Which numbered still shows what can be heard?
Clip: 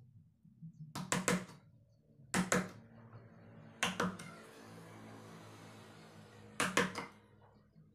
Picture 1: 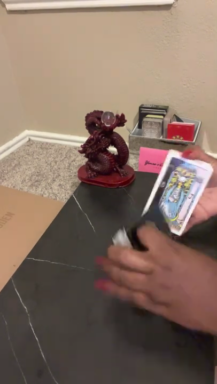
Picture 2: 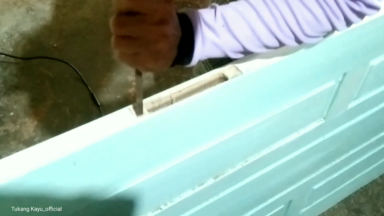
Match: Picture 2